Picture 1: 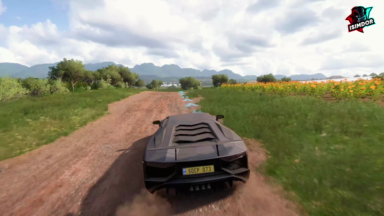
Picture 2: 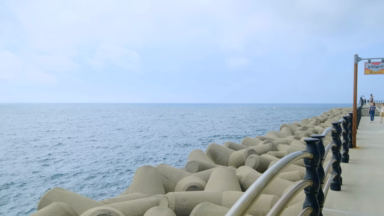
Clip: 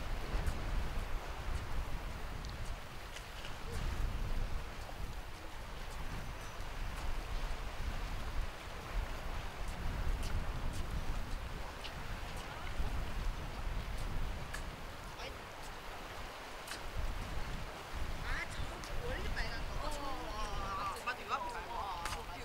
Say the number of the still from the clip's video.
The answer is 2